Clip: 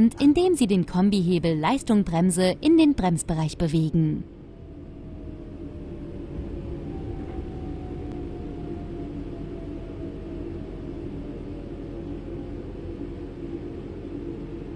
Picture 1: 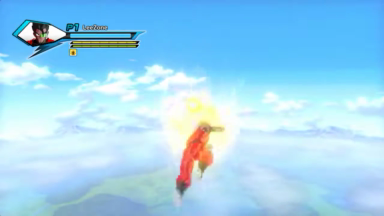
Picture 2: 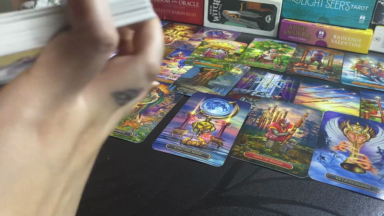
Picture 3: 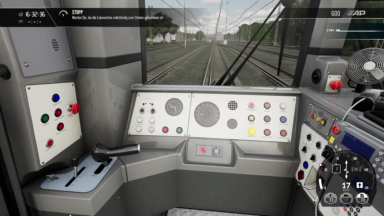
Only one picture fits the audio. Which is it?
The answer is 3